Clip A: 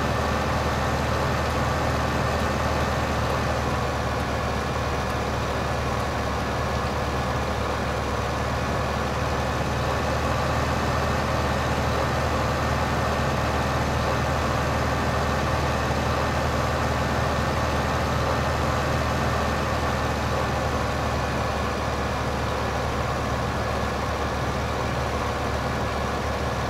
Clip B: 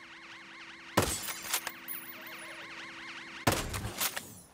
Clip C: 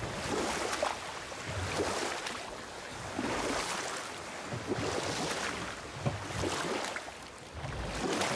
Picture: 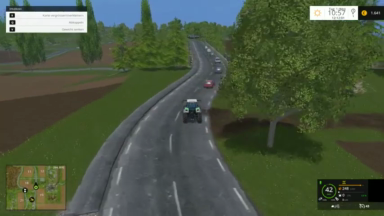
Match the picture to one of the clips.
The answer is A